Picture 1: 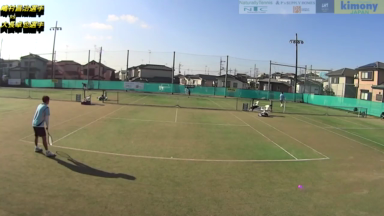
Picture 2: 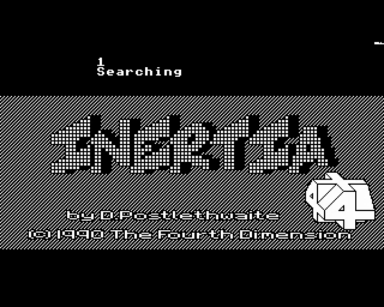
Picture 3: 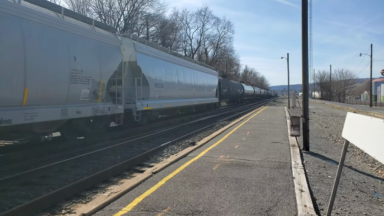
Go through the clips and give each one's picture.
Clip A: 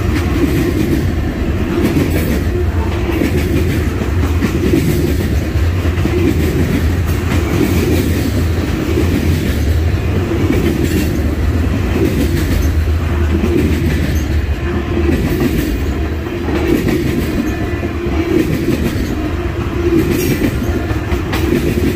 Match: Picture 3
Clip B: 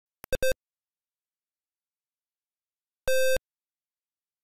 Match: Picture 2